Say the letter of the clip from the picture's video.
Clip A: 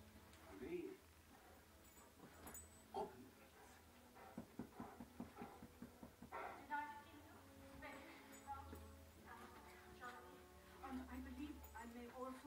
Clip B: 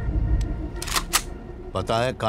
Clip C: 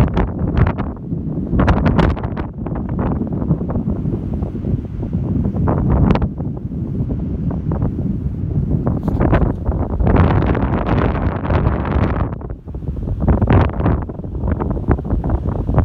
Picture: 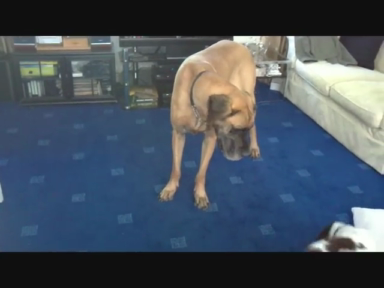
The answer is A